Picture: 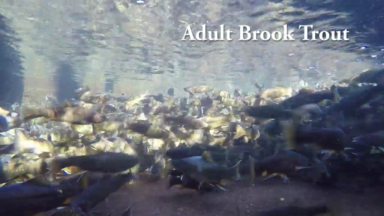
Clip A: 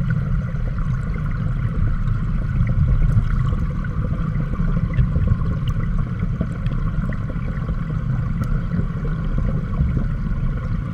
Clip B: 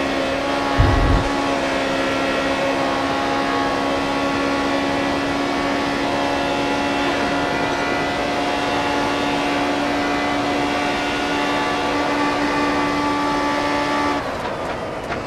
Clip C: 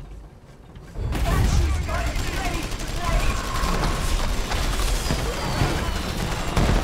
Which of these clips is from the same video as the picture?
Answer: A